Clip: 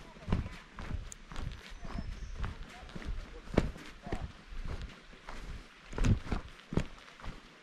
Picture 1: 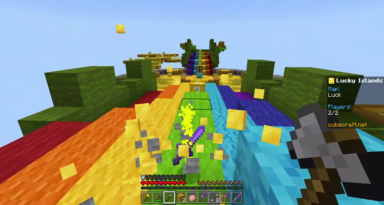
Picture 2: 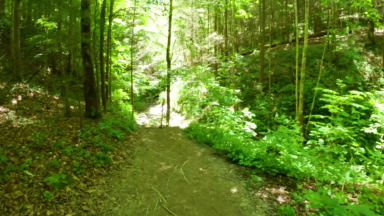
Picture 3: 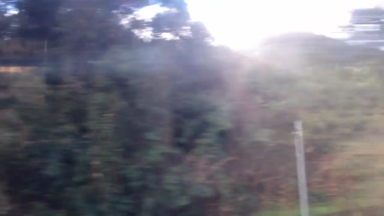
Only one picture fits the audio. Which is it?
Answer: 2